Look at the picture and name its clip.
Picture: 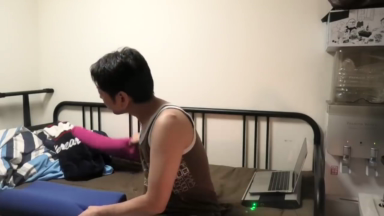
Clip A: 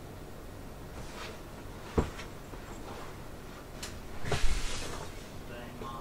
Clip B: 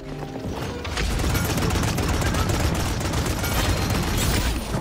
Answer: A